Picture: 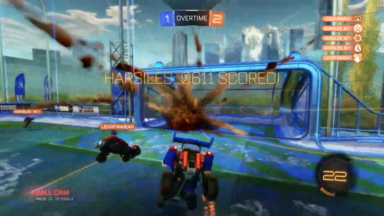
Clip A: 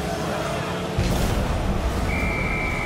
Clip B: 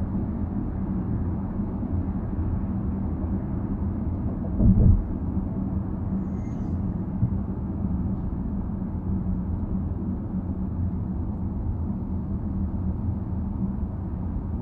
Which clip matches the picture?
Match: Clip A